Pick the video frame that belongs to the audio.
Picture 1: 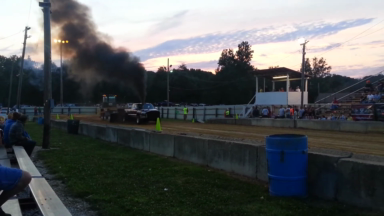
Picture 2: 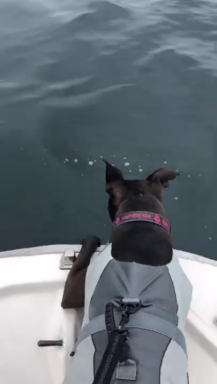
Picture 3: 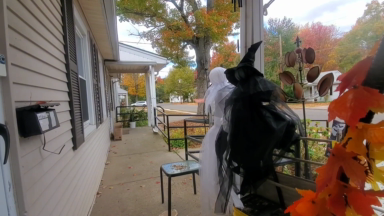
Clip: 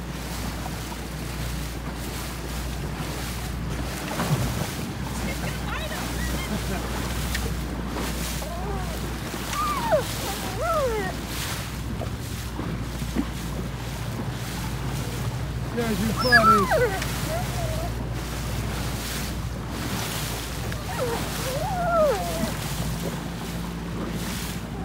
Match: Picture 2